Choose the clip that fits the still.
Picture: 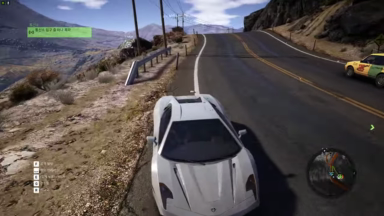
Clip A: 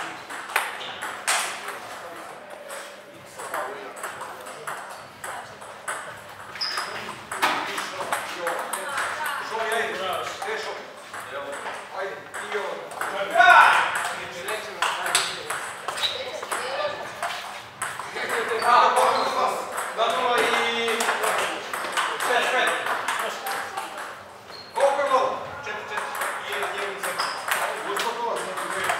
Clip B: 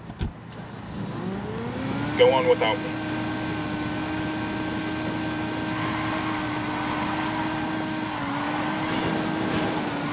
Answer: B